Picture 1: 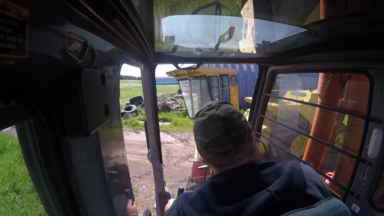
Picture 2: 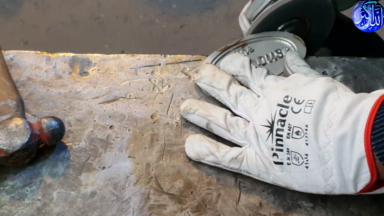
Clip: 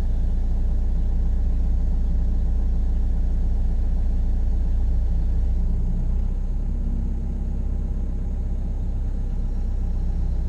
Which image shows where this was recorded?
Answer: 1